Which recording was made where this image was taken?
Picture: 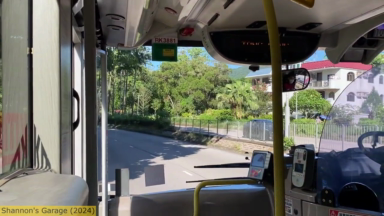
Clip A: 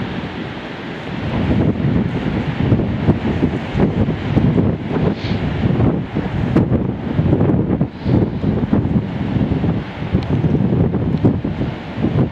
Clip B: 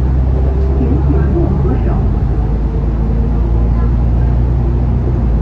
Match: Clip B